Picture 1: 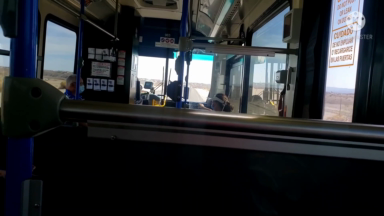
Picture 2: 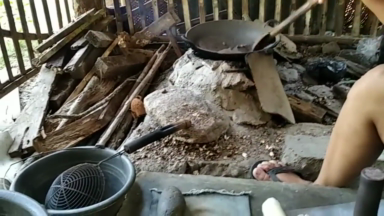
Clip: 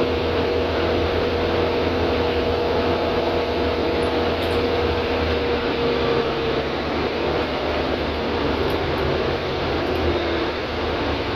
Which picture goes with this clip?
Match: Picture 1